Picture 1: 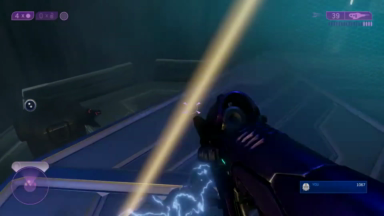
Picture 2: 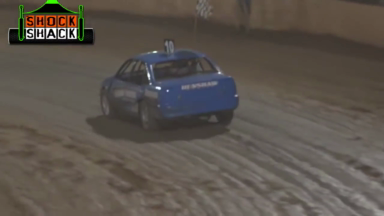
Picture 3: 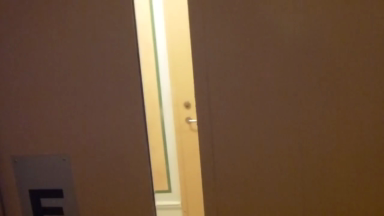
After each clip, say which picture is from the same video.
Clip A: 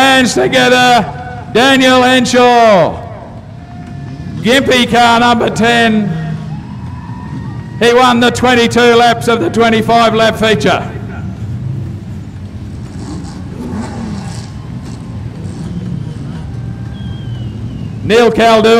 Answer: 2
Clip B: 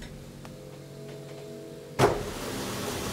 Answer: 3